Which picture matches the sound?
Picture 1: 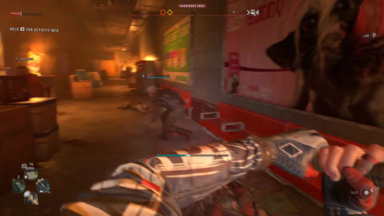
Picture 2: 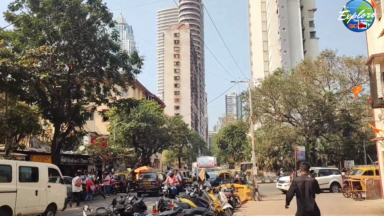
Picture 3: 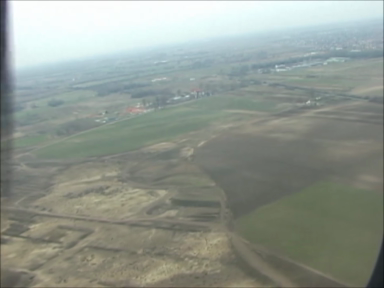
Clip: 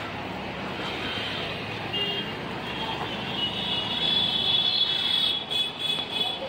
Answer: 2